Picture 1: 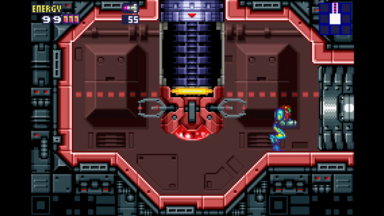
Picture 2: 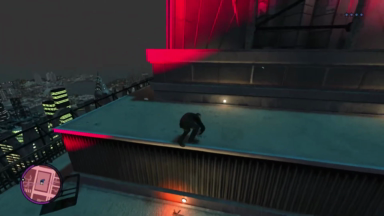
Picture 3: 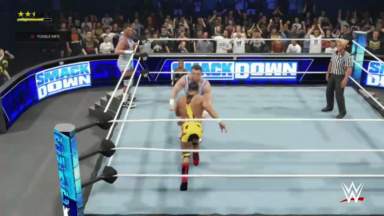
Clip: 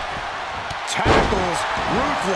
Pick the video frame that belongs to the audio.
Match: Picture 3